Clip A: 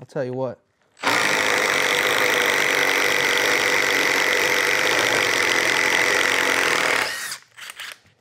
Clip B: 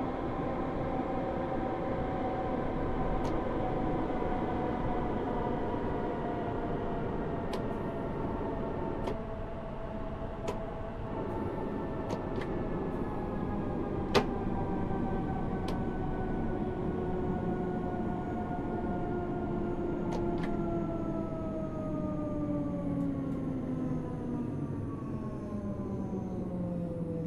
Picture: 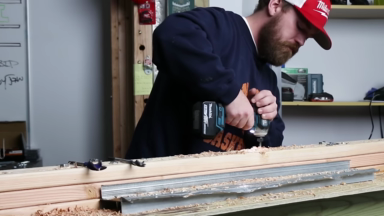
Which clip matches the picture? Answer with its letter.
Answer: A